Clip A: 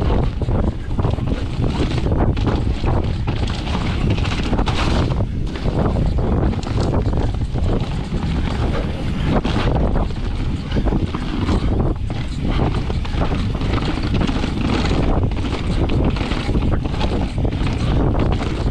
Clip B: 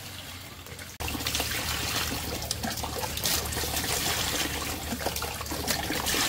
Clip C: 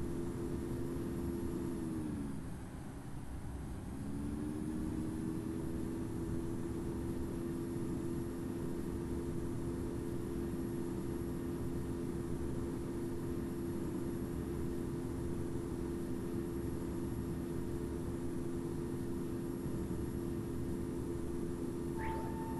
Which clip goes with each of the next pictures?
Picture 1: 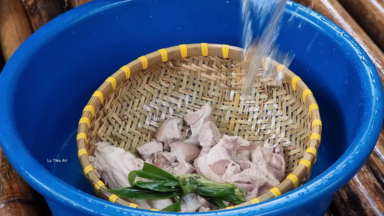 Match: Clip B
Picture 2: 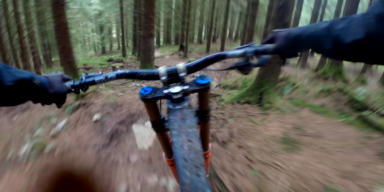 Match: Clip A